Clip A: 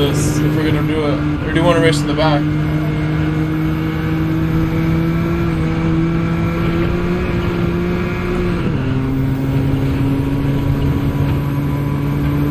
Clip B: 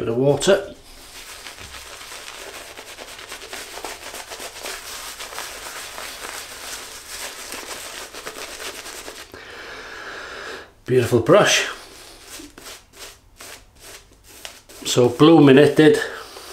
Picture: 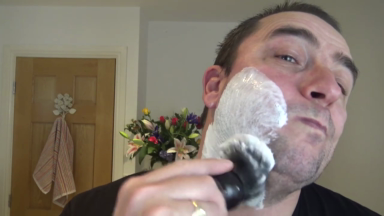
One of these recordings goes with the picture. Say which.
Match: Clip B